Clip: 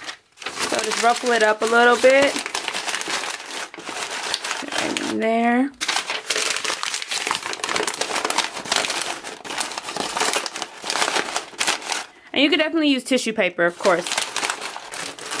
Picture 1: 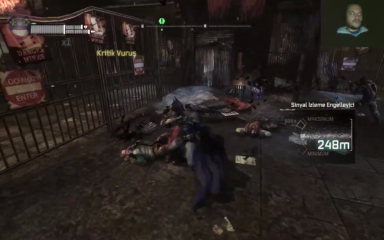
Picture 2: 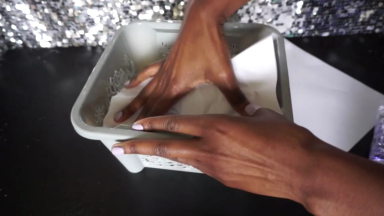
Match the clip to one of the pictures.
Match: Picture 2